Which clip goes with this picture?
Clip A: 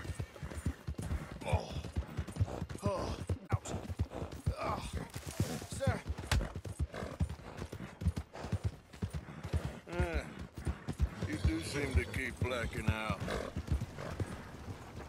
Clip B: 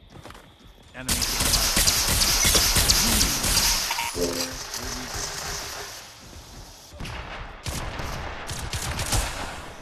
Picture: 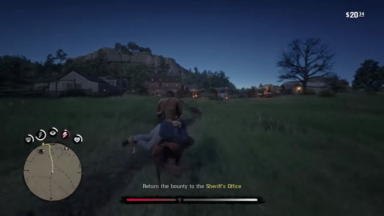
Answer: A